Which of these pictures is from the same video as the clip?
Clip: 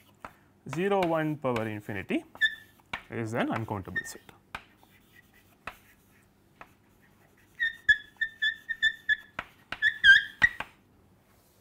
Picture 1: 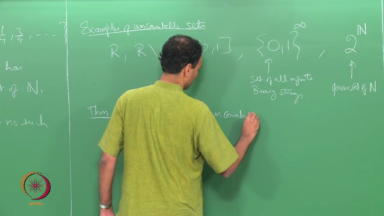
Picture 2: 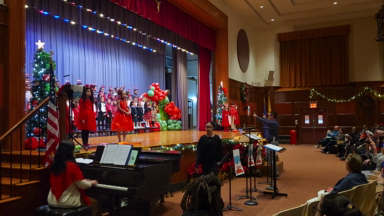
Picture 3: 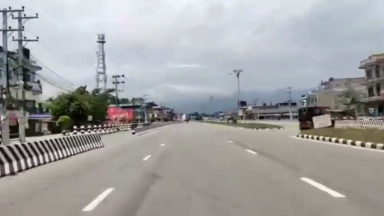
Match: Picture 1